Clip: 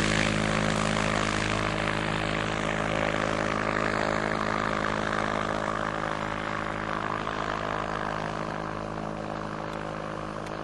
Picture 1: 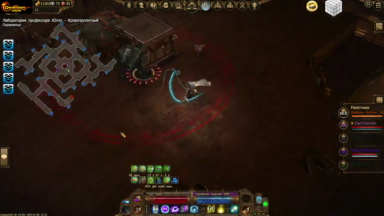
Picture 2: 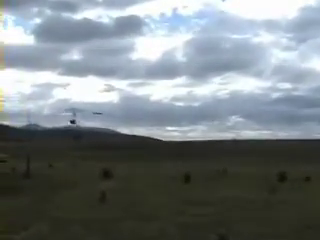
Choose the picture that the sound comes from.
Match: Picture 2